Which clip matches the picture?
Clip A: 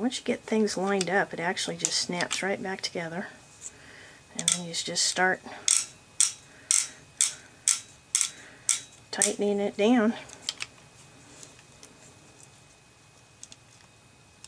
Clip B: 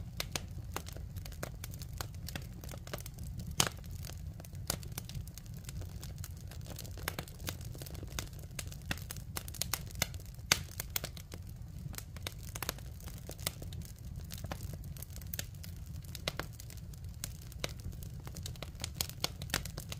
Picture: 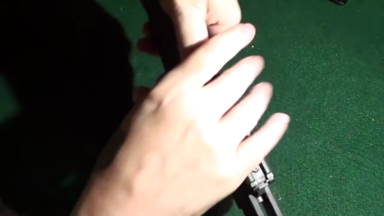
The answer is A